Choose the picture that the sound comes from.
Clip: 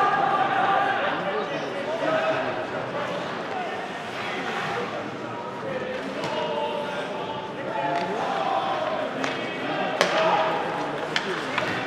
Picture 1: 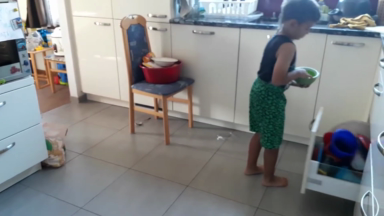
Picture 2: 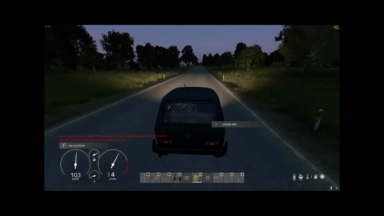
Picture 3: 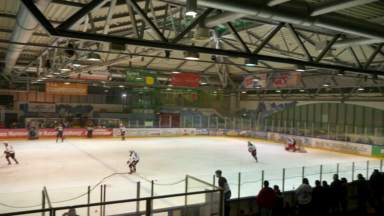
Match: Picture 3